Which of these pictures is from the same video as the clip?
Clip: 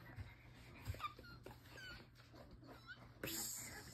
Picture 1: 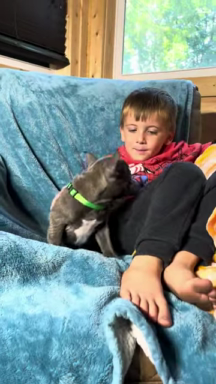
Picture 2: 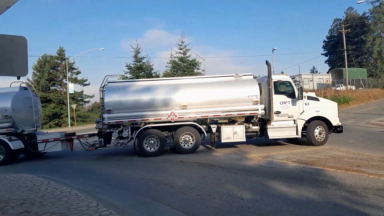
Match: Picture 1